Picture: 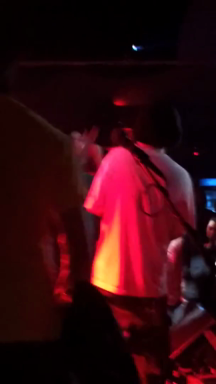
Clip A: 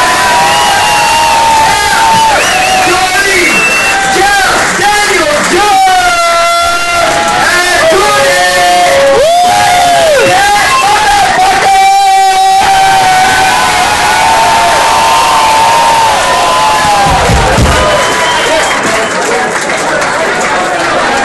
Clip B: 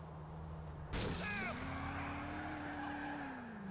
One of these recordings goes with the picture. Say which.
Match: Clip A